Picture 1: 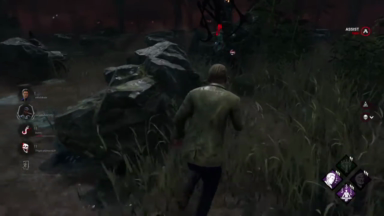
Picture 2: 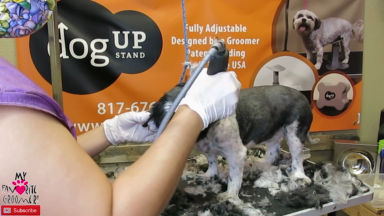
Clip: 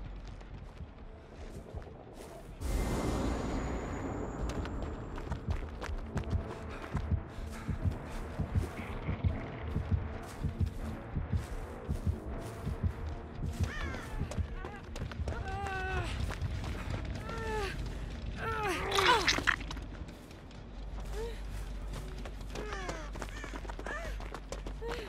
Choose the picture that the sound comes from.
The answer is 1